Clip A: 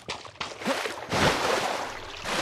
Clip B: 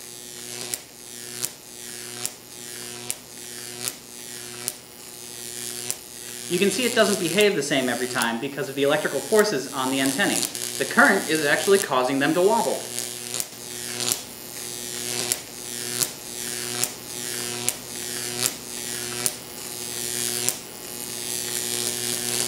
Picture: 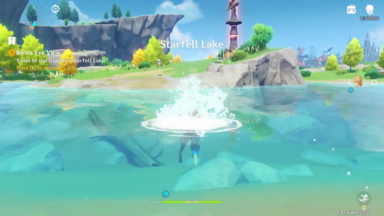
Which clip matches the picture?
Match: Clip A